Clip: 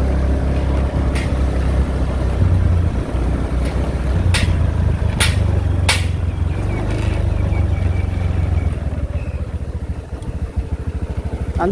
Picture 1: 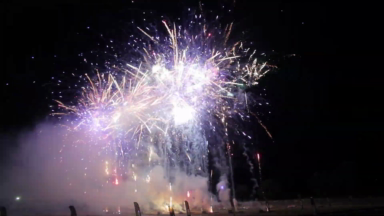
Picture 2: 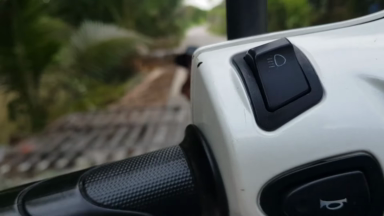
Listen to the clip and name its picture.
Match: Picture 2